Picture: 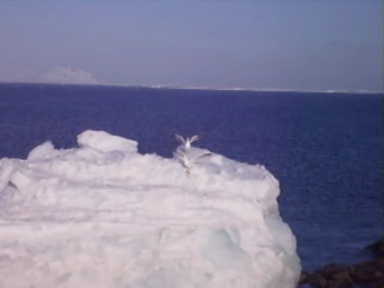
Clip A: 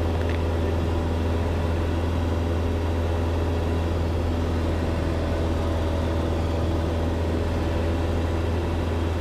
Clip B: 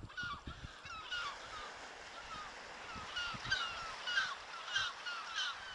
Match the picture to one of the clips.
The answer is B